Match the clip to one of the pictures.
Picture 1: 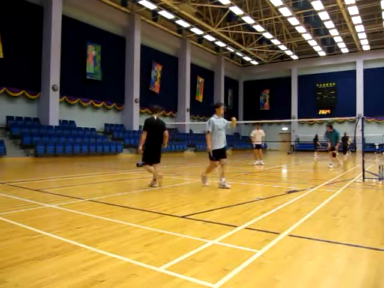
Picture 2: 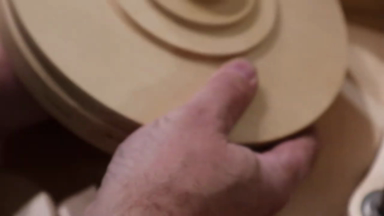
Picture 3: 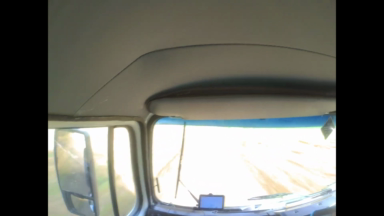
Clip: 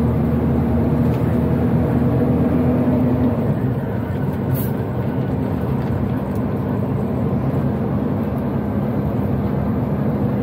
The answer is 3